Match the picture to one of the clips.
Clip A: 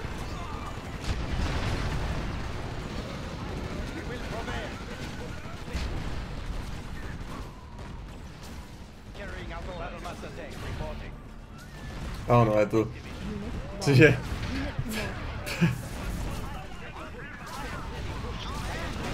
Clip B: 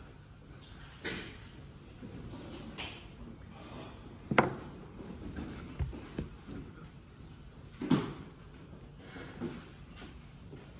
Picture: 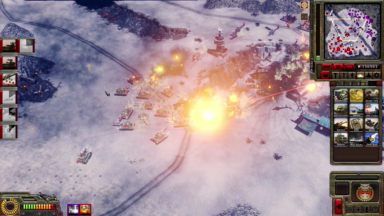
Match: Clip A